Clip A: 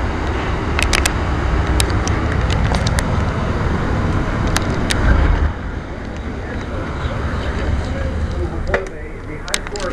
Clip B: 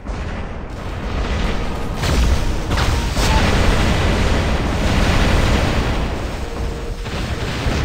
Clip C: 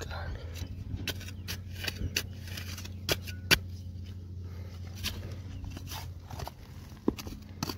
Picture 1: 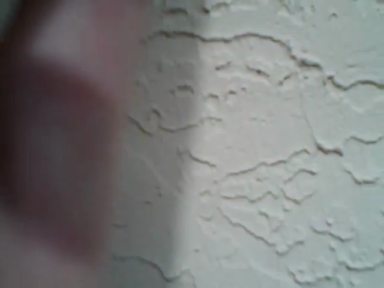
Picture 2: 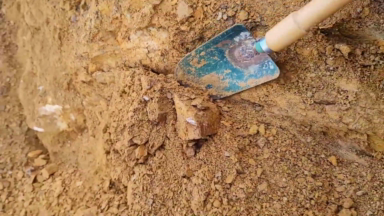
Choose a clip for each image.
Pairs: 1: A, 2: C